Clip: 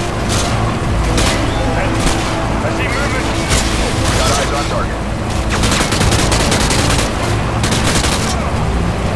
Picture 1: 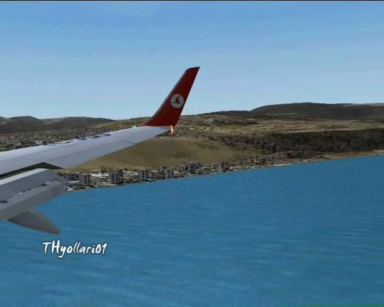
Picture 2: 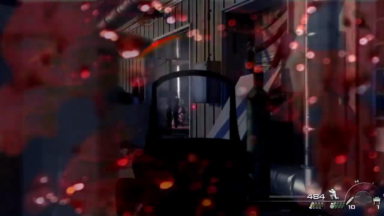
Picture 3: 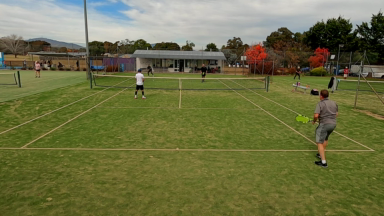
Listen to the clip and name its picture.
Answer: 2